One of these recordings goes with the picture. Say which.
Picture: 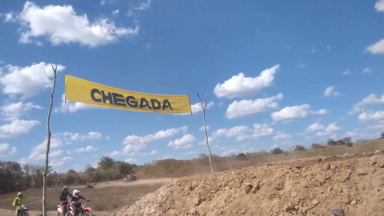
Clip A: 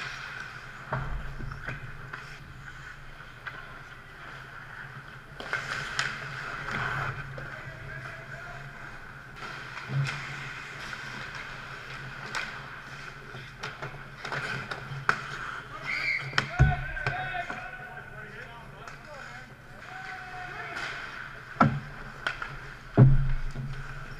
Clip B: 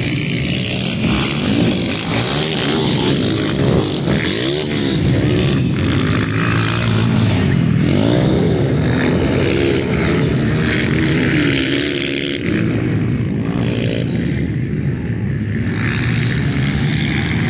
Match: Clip B